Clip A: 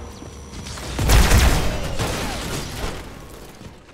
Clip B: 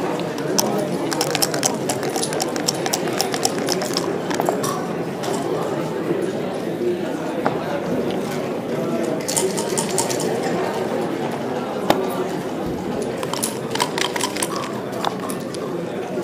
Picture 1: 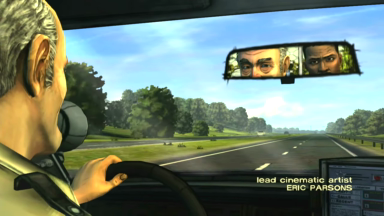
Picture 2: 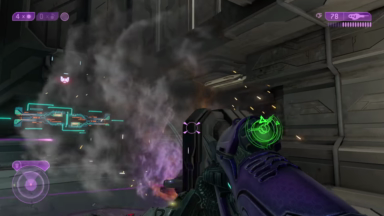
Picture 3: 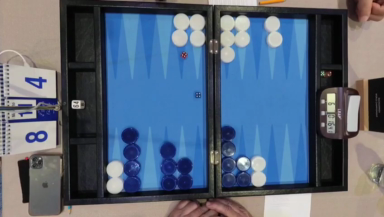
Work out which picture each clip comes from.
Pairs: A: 2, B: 3